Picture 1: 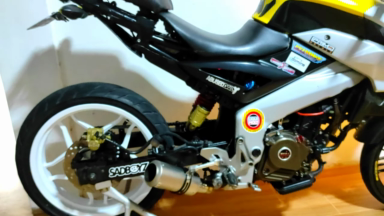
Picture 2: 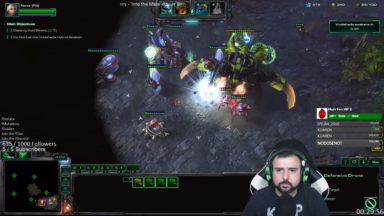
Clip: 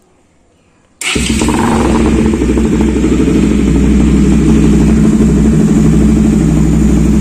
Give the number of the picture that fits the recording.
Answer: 1